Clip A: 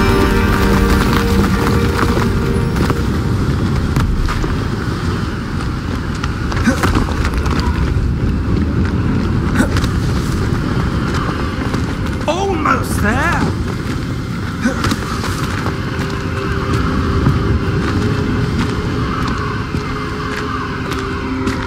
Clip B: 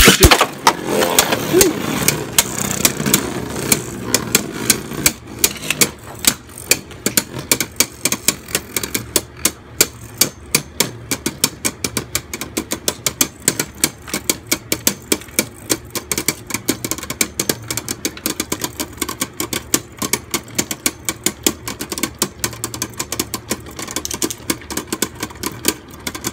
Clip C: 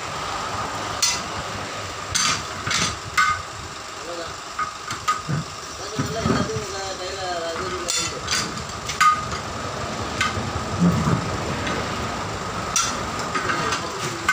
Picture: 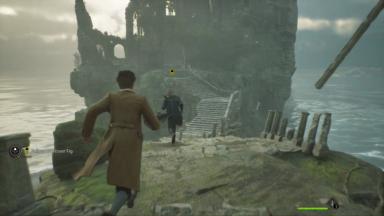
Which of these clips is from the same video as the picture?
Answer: A